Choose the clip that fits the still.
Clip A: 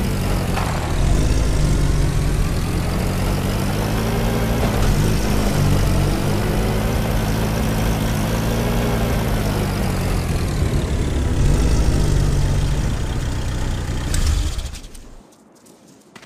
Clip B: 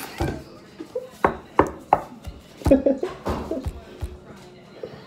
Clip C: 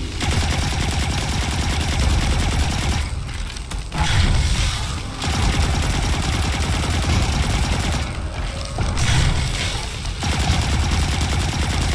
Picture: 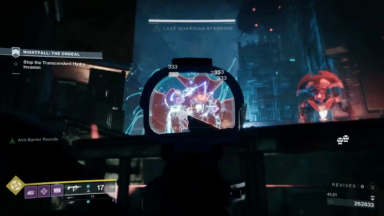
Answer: C